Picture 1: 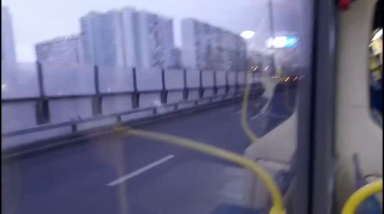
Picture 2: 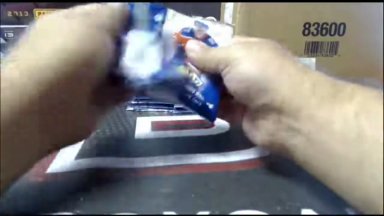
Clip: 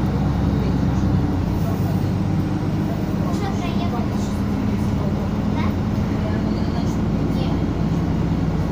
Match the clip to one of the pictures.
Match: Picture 1